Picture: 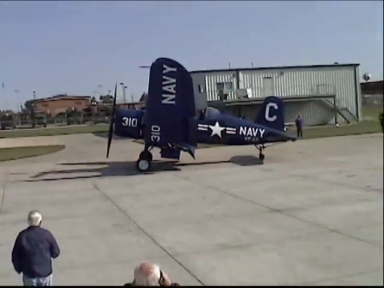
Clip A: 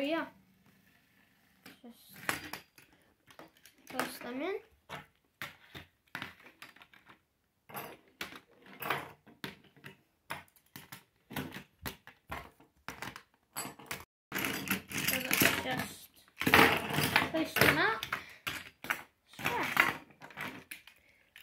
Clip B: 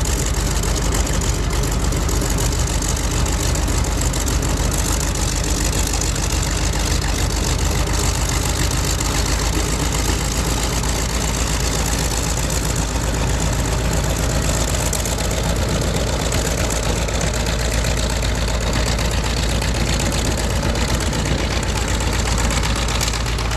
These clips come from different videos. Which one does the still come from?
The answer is B